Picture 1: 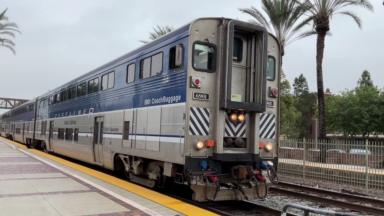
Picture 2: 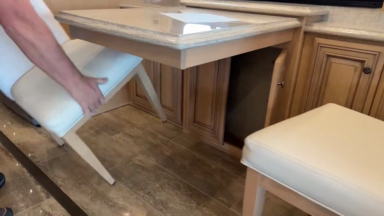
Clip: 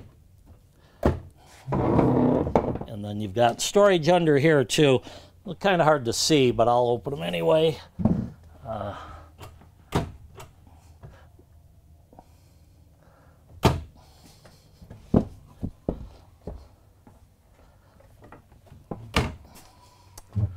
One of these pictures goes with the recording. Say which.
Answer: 2